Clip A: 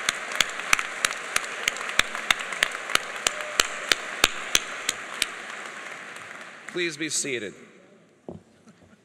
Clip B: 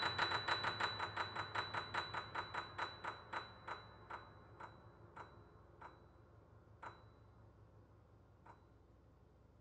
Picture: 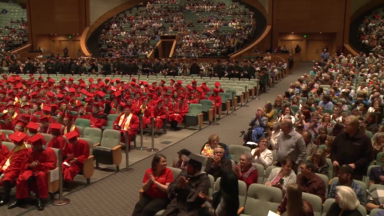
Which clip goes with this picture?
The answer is A